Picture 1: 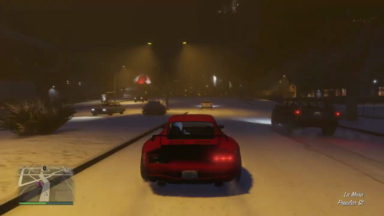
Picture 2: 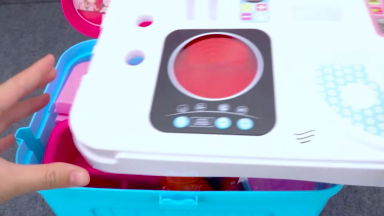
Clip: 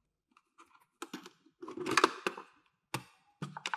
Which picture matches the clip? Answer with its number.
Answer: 2